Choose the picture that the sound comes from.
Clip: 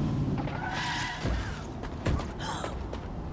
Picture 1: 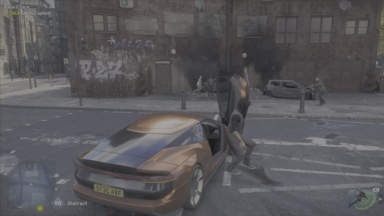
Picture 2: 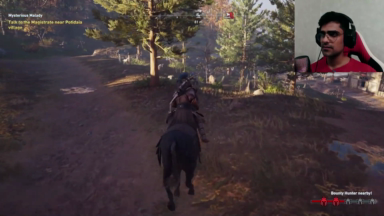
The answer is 1